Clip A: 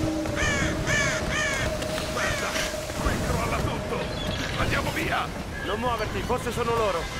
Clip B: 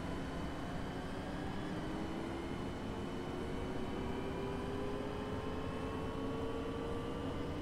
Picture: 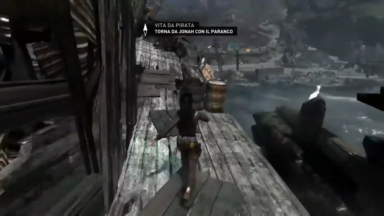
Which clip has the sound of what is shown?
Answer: A